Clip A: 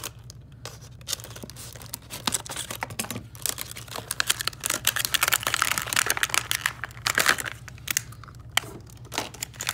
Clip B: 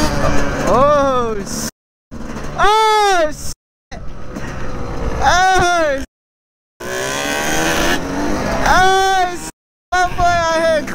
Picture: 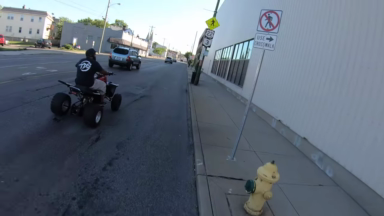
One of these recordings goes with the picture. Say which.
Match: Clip B